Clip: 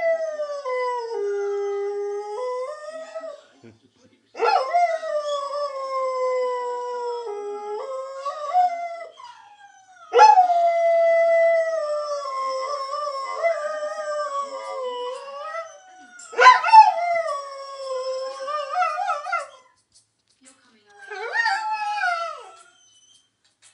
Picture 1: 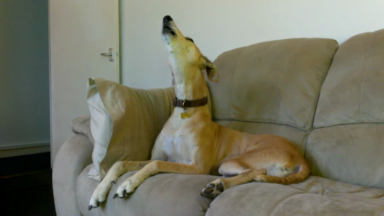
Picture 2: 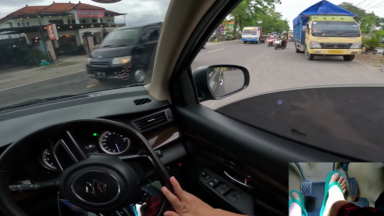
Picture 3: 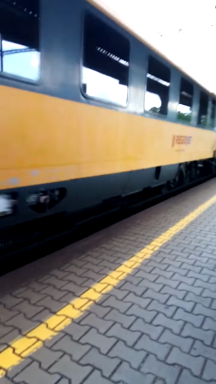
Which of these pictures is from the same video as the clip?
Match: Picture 1